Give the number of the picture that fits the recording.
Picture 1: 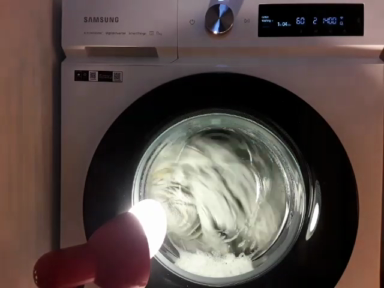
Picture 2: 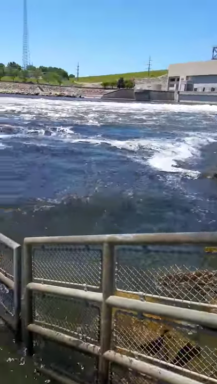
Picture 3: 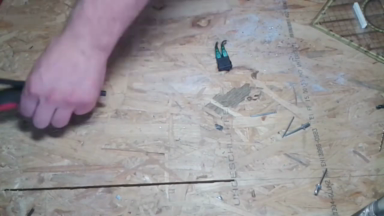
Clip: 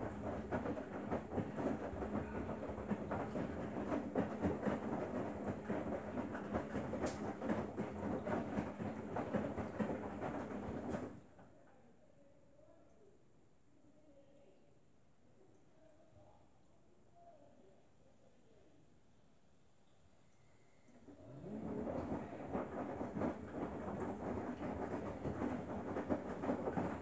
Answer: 1